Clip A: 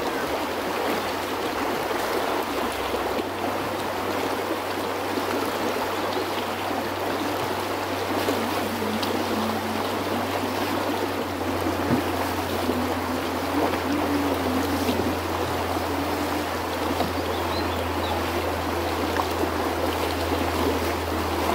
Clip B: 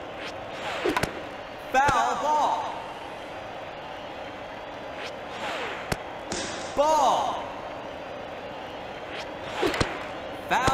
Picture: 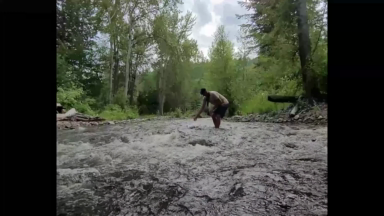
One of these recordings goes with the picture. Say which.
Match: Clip A